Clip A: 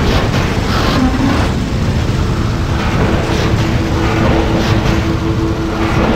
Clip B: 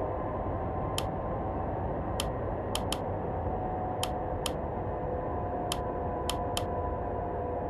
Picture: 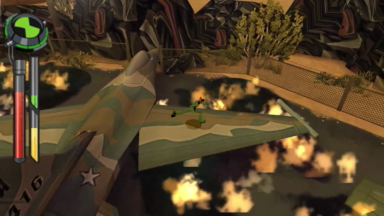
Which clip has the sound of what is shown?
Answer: A